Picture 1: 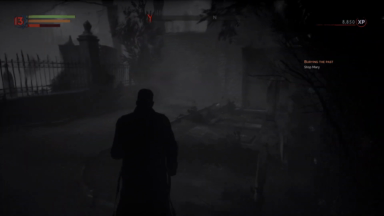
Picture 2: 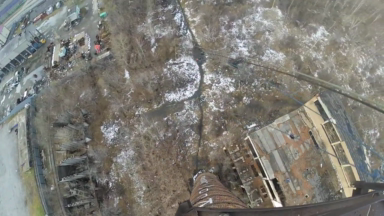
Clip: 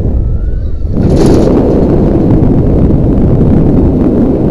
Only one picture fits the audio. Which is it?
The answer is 2